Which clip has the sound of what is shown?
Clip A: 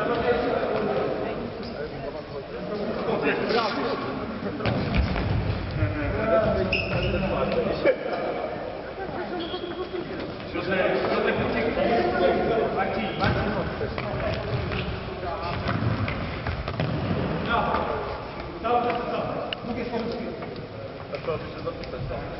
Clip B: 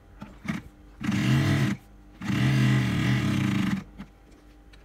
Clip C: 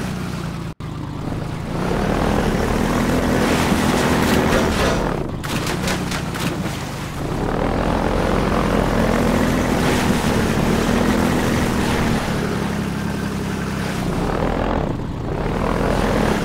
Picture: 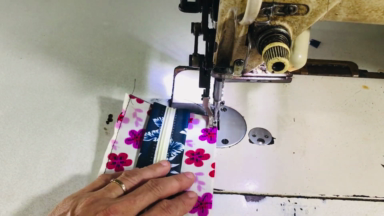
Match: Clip B